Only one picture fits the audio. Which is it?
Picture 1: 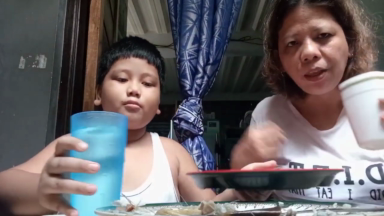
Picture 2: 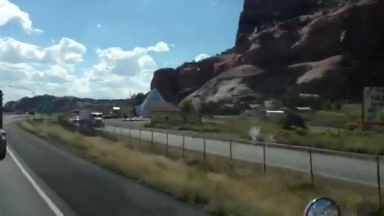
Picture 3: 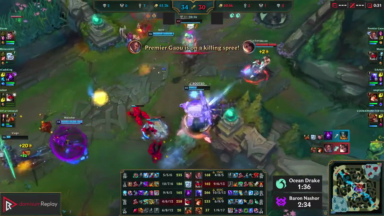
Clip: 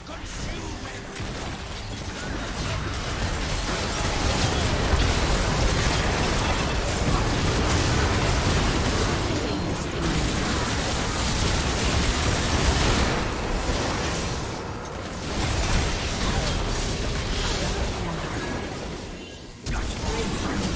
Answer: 3